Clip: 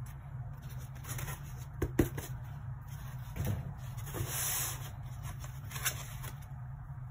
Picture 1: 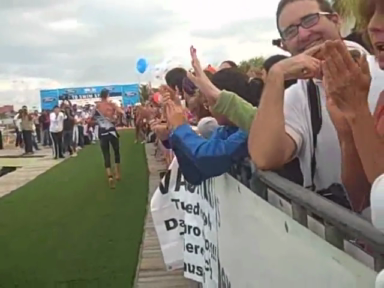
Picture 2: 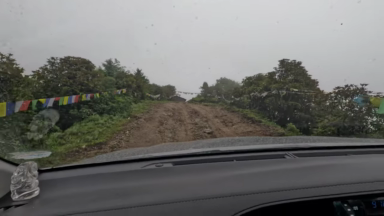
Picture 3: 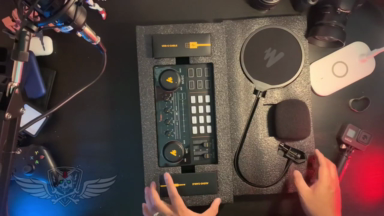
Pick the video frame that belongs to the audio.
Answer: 3